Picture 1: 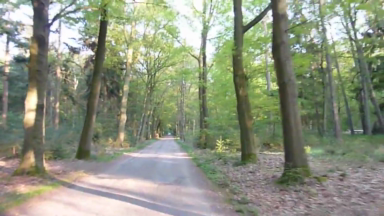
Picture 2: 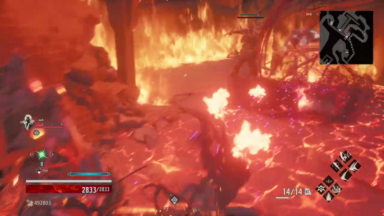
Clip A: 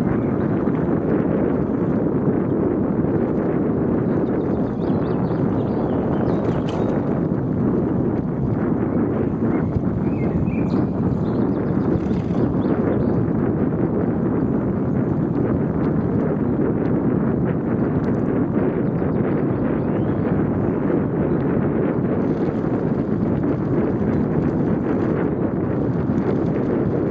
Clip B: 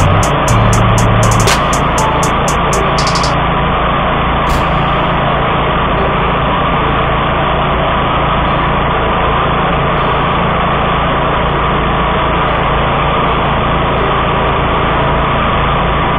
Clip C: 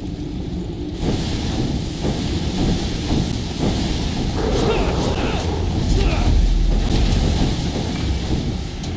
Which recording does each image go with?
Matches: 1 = A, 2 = C